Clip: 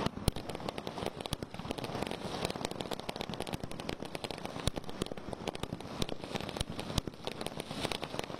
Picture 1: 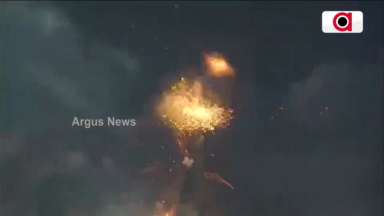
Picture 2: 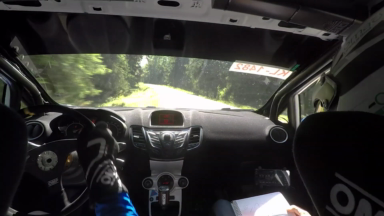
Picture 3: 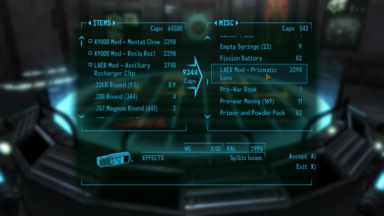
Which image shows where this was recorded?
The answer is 1